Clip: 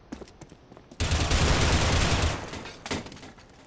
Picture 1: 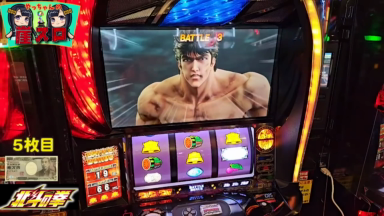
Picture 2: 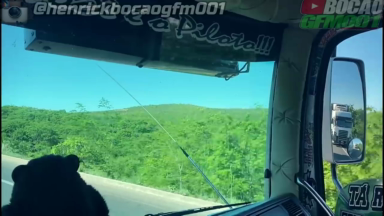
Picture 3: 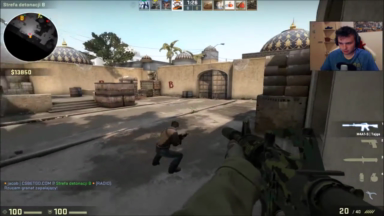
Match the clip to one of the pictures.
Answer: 3